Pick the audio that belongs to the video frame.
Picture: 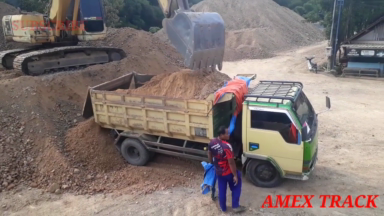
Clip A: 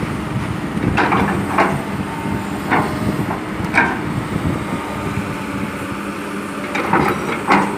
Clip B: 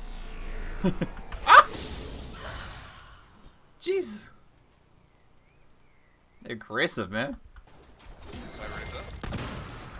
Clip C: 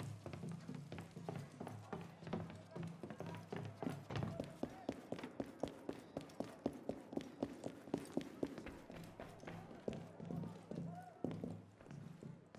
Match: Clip A